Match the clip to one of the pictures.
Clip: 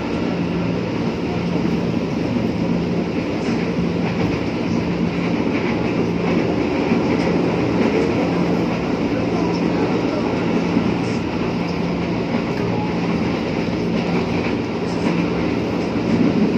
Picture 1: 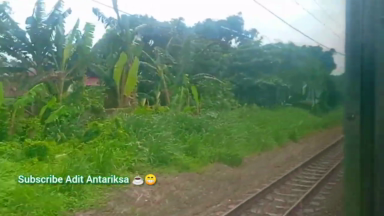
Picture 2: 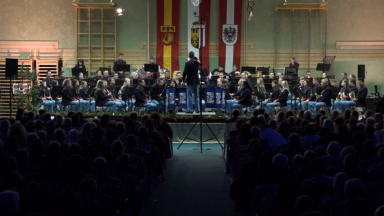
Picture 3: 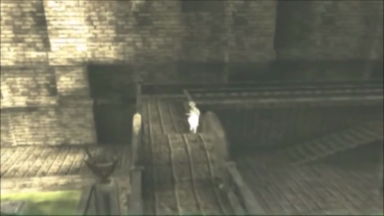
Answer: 1